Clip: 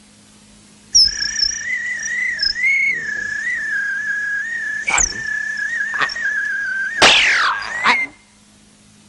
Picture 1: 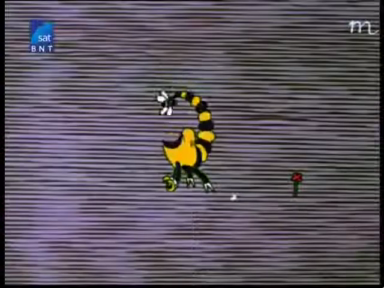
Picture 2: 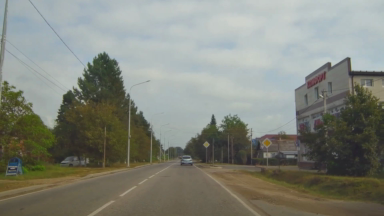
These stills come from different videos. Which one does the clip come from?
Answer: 1